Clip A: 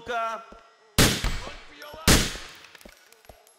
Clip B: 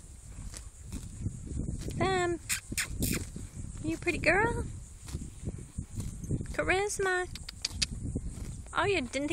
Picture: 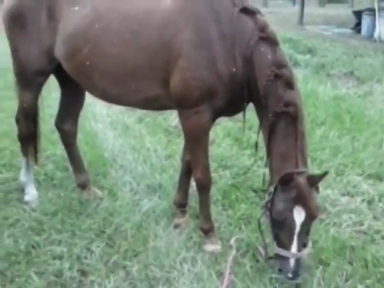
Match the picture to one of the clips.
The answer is B